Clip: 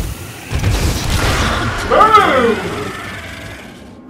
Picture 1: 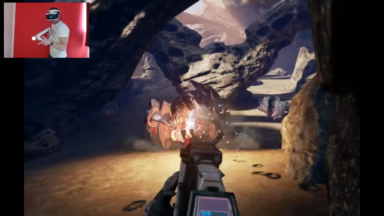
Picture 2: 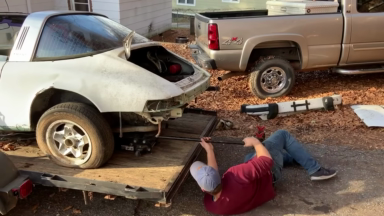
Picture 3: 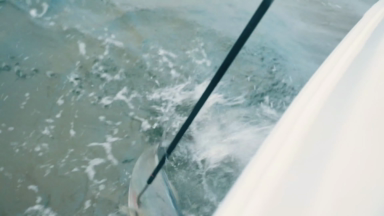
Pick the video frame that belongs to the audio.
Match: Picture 1